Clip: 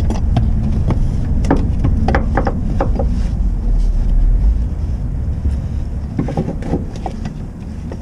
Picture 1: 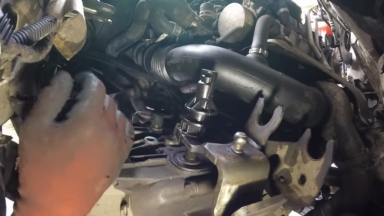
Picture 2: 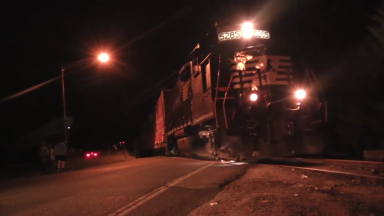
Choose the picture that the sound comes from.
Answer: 1